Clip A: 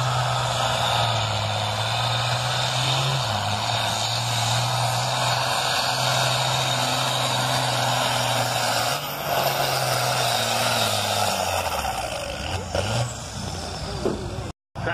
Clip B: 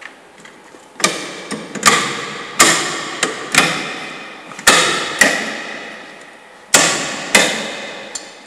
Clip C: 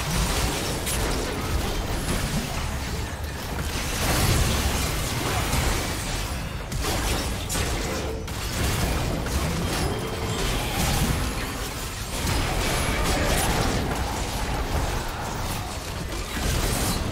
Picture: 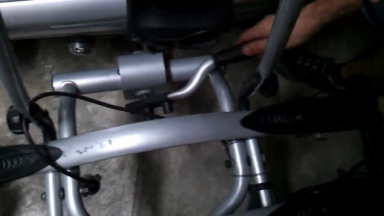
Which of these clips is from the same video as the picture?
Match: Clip B